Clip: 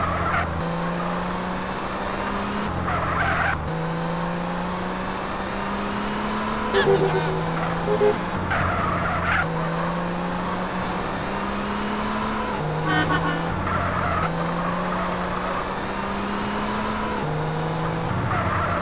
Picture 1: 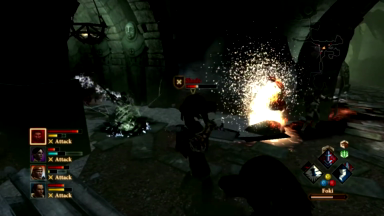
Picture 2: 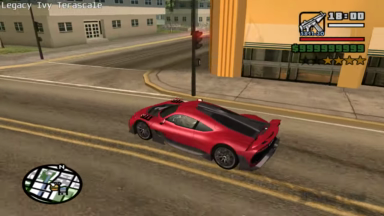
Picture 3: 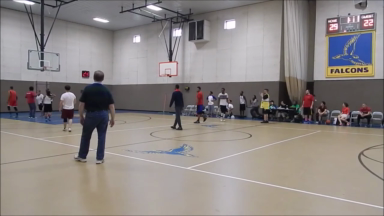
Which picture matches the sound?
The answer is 2